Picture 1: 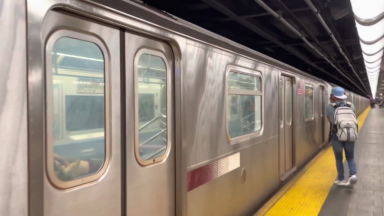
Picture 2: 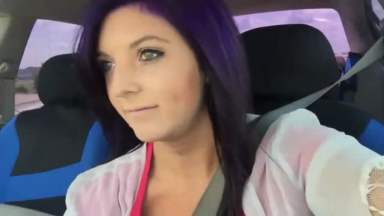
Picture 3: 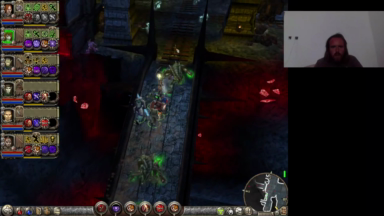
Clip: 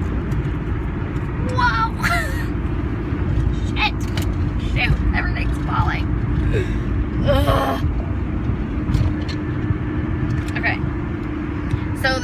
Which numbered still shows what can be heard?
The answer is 2